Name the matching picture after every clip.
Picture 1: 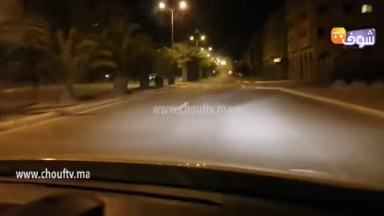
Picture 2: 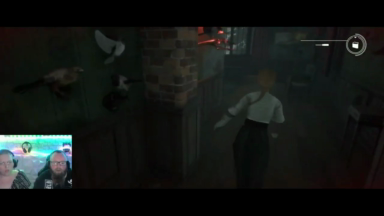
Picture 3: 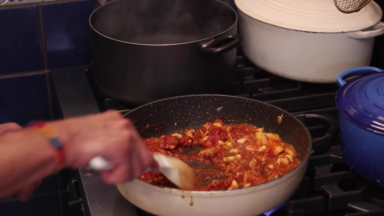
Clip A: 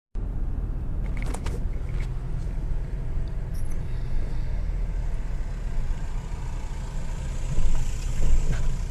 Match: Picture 1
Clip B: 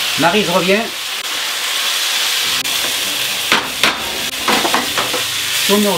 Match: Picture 3